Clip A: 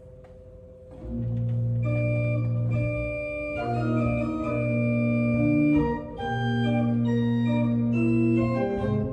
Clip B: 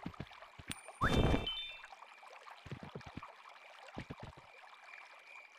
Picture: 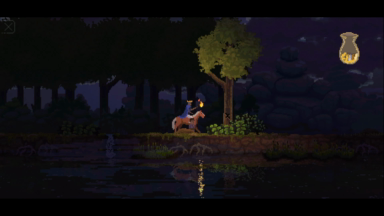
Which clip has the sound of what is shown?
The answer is B